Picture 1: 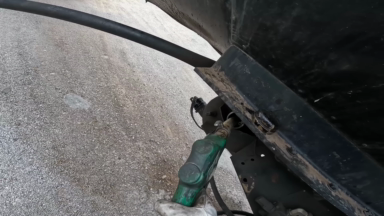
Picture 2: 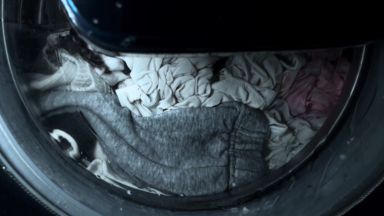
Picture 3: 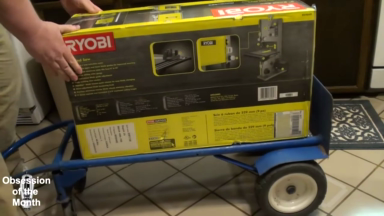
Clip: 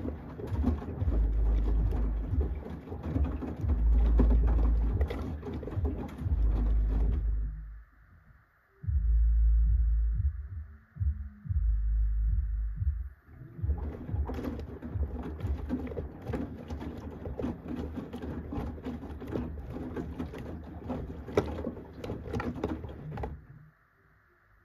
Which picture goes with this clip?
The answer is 2